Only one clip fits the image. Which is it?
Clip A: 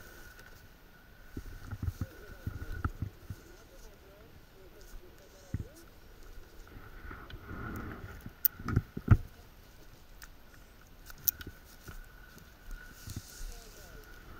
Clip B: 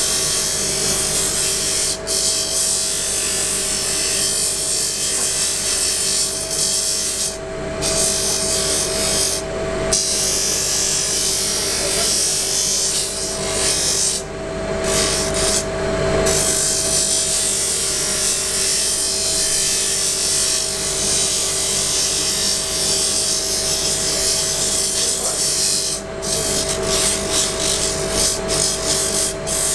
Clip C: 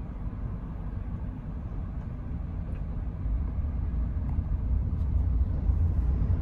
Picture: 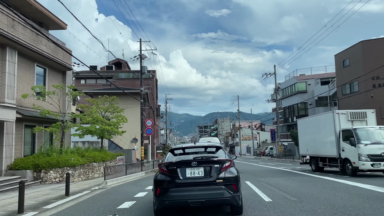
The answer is C